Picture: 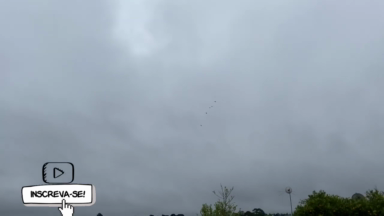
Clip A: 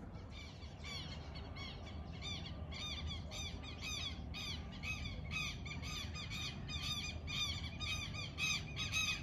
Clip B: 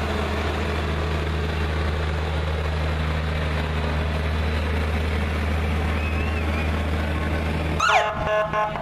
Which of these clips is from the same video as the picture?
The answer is A